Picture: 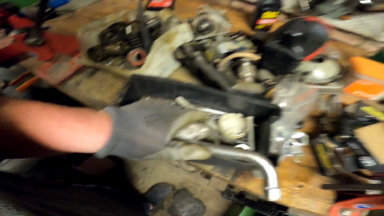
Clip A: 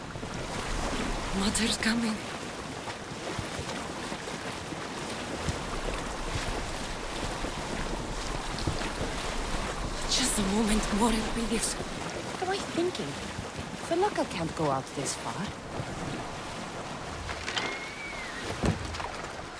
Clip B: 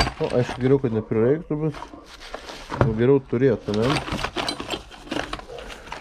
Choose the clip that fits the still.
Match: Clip B